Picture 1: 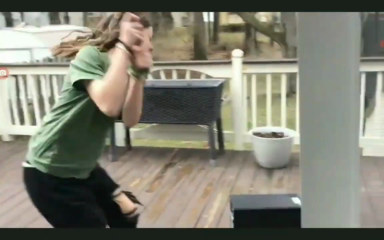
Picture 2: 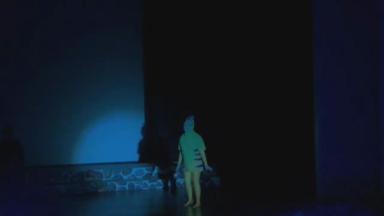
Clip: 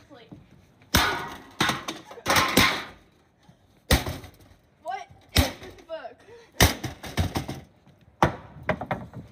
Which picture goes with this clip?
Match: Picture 1